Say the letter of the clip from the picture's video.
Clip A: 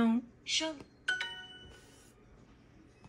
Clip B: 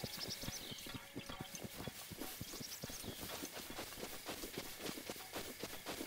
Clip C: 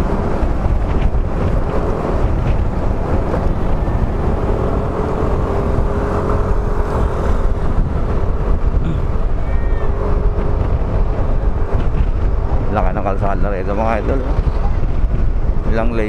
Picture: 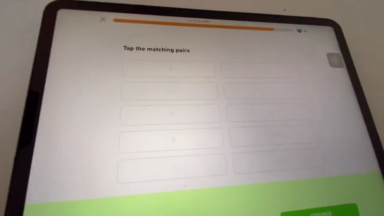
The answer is A